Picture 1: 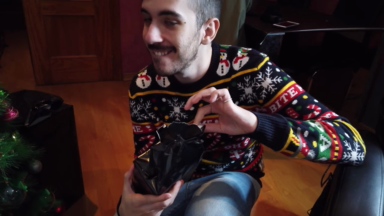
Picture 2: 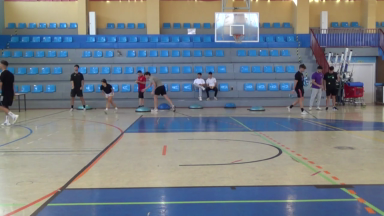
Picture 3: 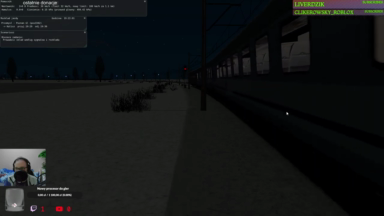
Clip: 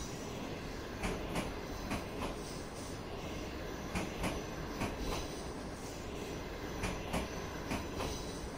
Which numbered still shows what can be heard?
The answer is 3